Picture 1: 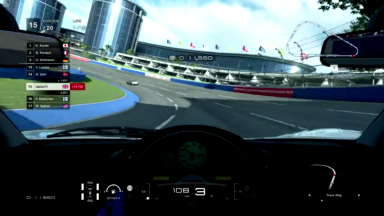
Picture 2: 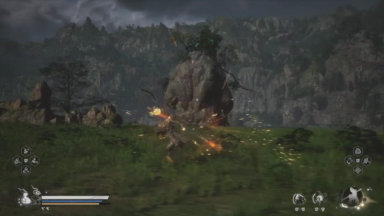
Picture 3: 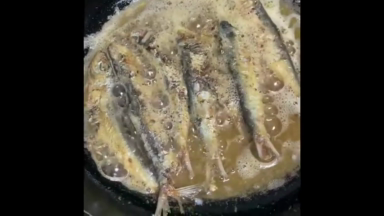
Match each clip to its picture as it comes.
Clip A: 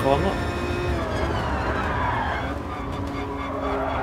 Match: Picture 1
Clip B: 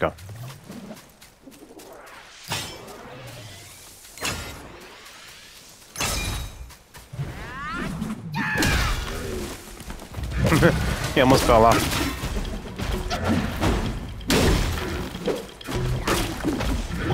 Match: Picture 2